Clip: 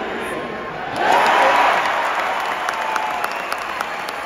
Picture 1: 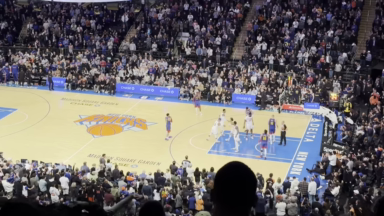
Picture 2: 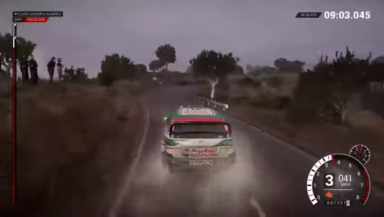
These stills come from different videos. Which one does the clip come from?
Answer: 1